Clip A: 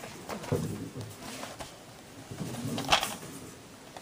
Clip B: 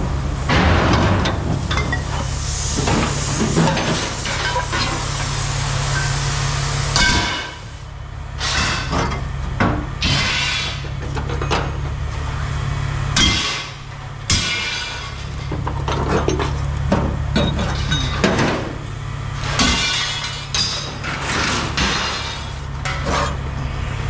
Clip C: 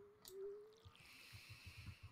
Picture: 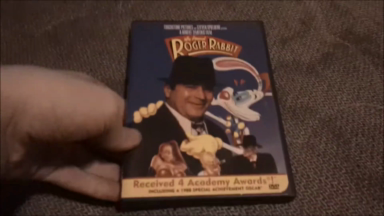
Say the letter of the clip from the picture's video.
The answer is A